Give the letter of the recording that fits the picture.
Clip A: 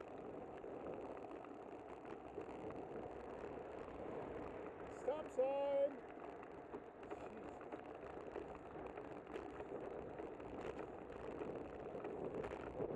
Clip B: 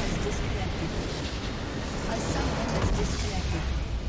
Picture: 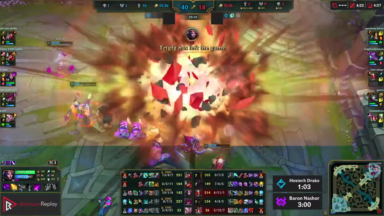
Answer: B